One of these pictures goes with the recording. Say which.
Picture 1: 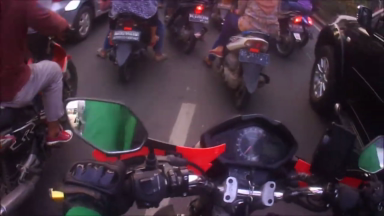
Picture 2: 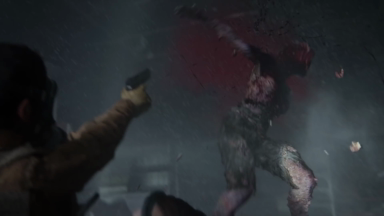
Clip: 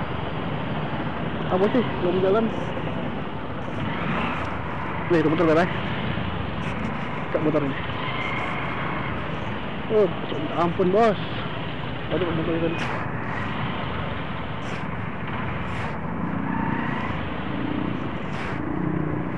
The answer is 1